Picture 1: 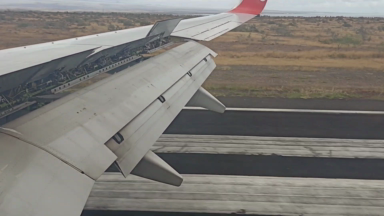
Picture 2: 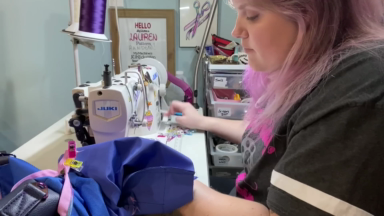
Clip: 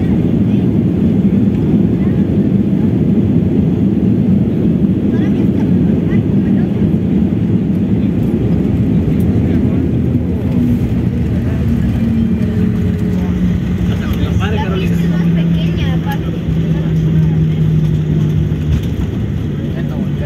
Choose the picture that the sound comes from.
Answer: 1